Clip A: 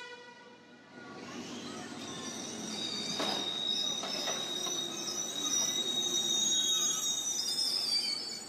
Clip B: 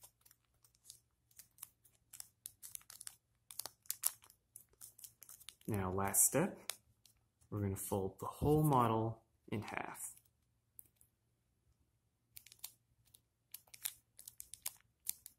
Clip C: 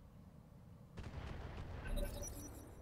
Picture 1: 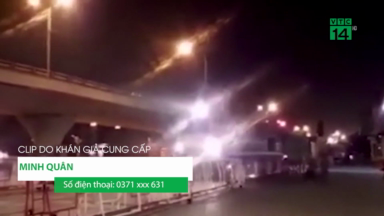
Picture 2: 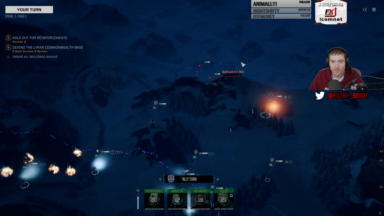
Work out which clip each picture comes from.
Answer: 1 A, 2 C